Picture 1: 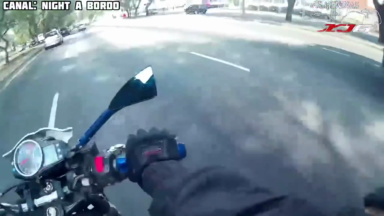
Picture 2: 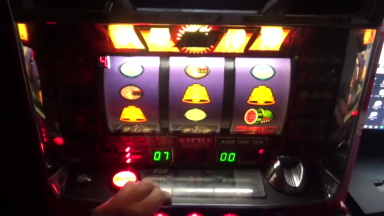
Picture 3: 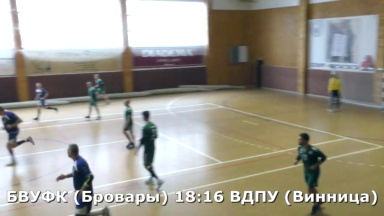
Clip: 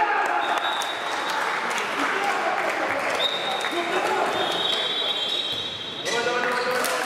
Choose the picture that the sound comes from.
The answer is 3